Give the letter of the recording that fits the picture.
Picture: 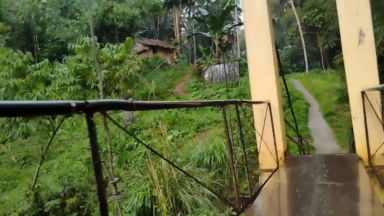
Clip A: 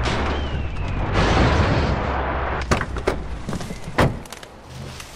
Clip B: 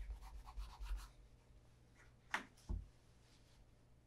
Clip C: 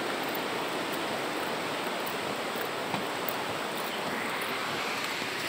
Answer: C